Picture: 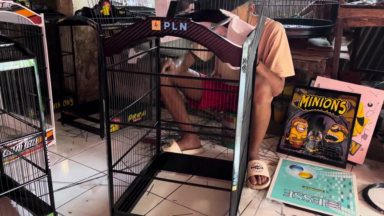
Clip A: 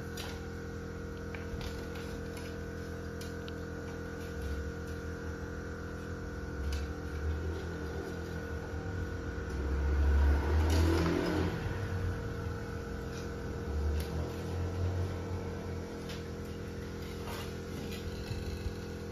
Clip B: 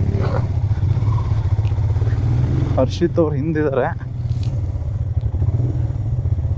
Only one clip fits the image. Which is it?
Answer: A